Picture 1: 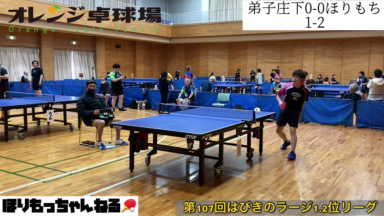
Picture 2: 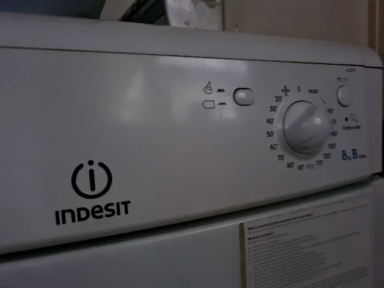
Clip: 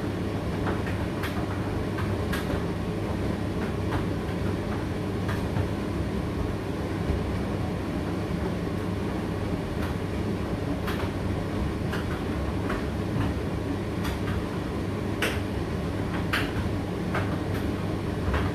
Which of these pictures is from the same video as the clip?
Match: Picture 2